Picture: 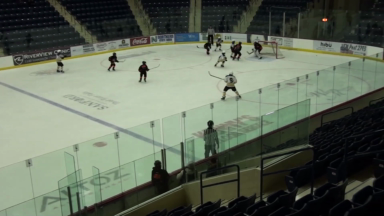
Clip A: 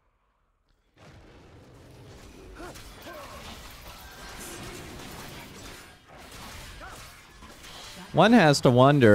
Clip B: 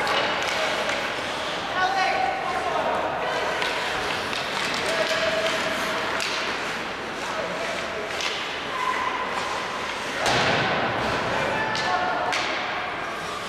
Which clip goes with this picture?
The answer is B